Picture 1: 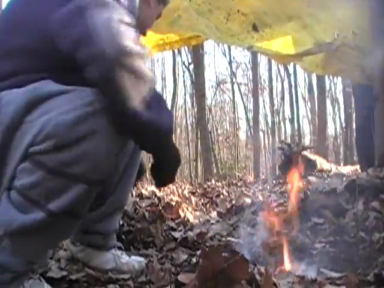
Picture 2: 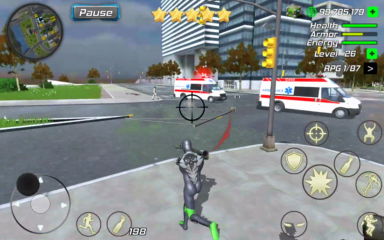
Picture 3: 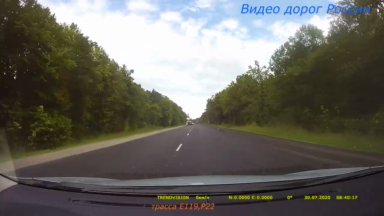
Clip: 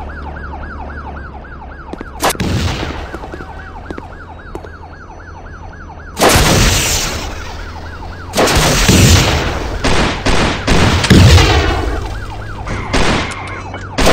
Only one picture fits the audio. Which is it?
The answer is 2